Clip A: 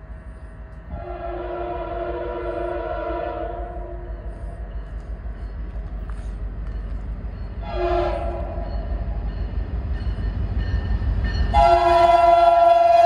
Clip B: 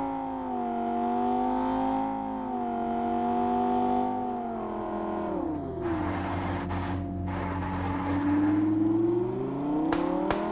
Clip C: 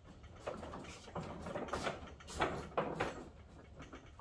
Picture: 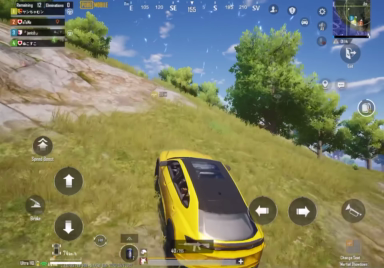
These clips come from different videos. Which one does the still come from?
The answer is B